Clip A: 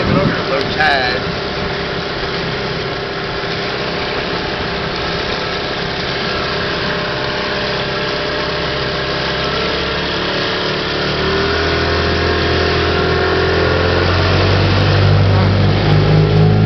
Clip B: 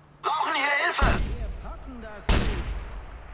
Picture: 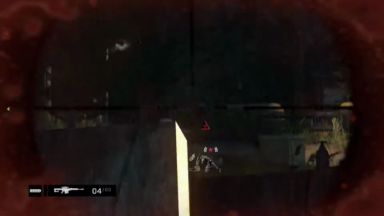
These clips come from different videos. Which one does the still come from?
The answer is B